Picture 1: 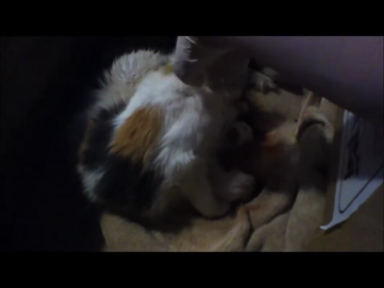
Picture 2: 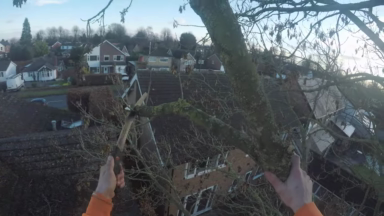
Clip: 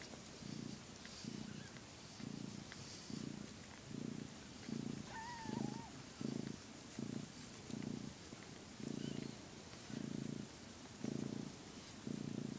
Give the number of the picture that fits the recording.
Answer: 1